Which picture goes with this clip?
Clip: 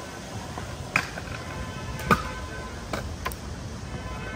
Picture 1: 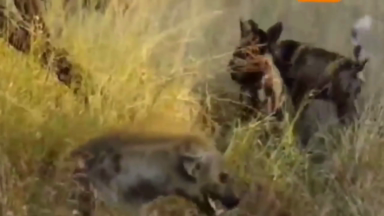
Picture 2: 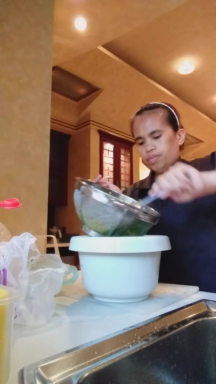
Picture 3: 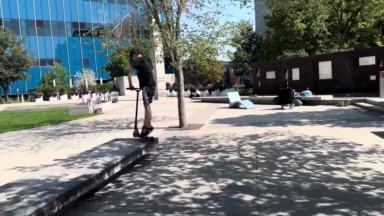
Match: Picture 3